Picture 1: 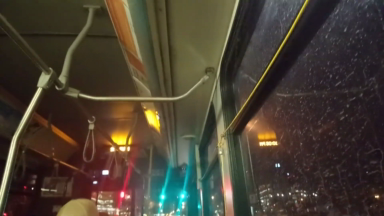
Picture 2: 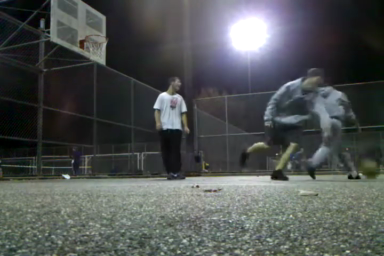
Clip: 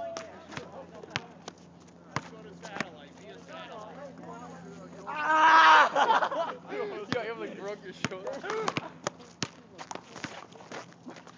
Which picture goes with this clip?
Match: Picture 2